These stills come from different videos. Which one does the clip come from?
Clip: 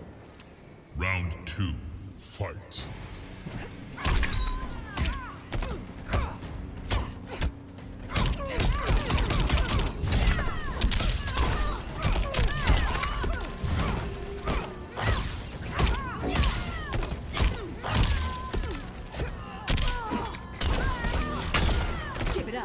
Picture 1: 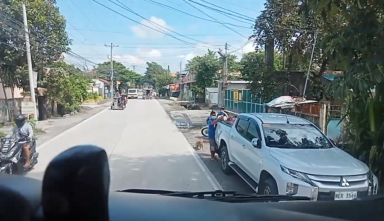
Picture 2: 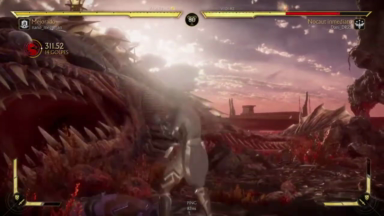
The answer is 2